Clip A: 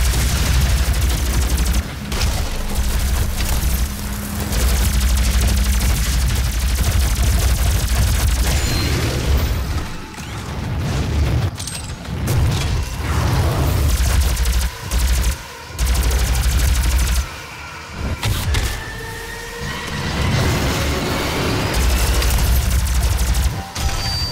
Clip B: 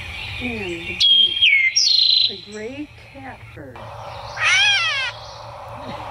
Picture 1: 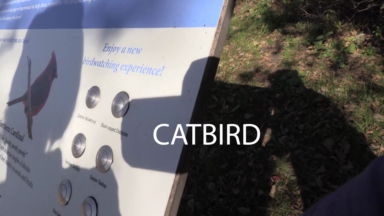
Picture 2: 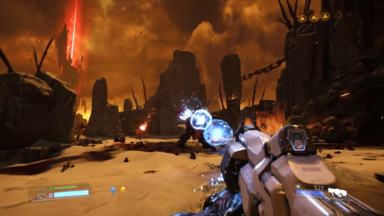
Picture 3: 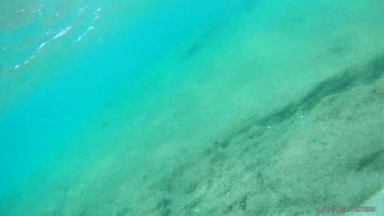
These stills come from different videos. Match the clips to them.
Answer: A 2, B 1